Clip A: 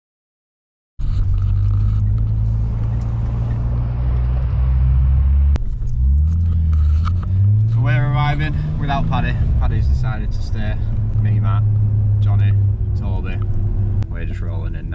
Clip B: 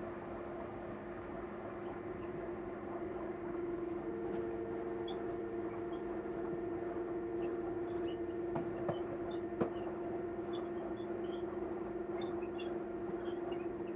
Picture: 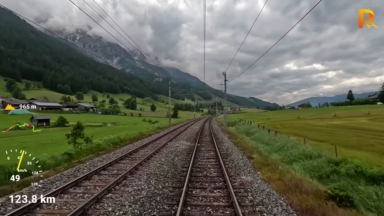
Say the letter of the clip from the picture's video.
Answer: B